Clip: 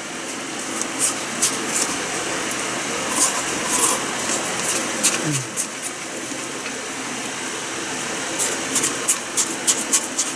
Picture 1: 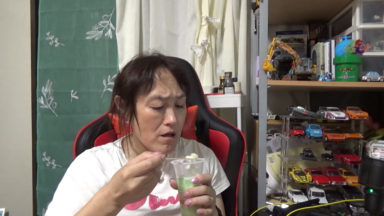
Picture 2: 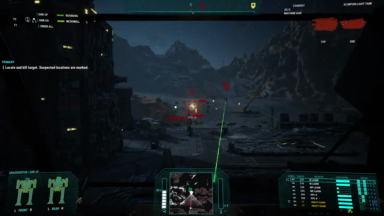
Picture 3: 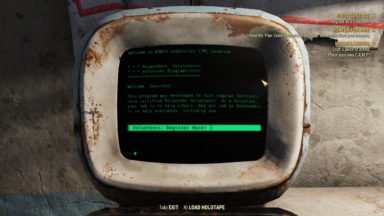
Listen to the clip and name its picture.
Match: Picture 1